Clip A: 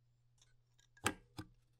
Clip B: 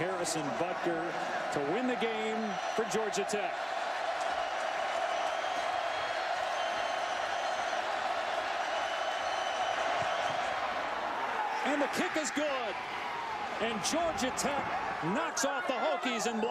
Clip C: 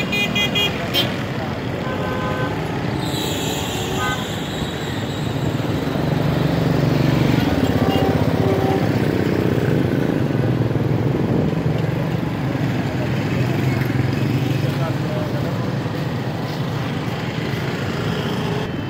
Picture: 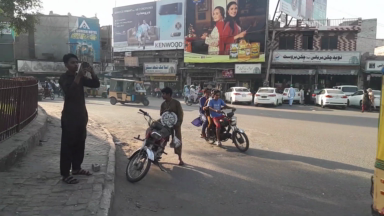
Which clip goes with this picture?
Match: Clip C